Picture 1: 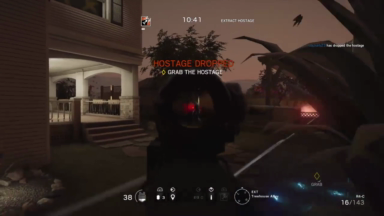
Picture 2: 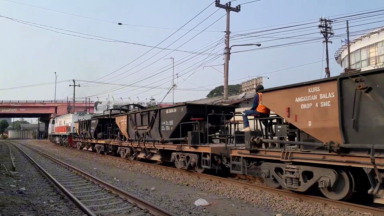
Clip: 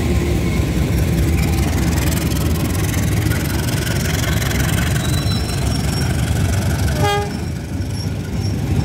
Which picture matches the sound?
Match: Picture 2